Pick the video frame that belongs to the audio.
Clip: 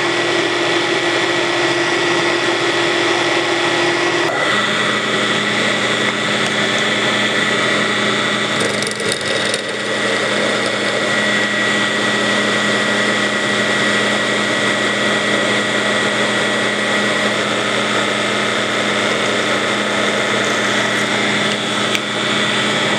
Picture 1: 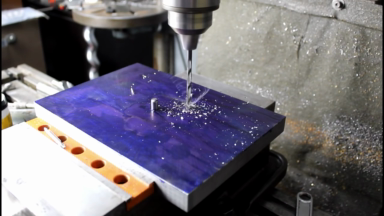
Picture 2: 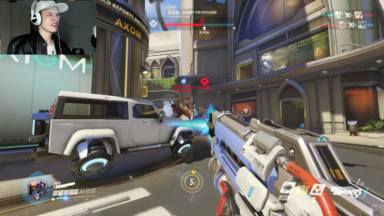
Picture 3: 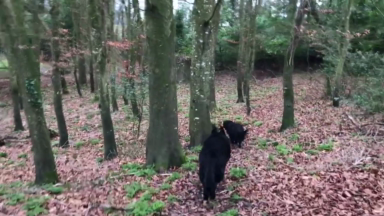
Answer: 1